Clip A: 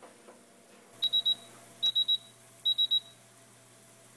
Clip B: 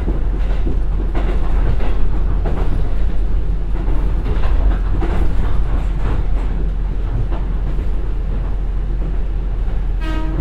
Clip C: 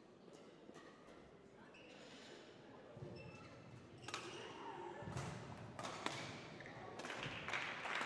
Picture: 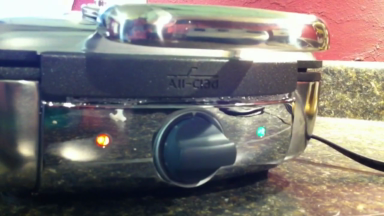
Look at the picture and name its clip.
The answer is A